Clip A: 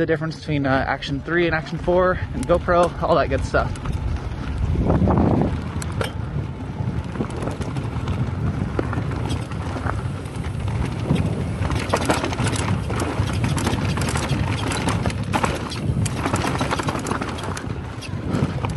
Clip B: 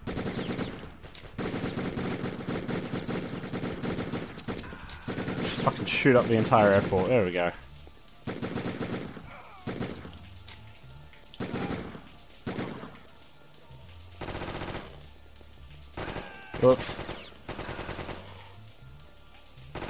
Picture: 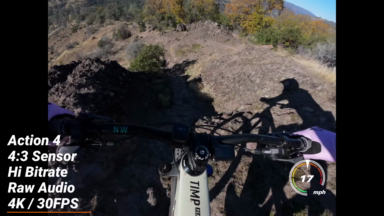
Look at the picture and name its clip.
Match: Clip A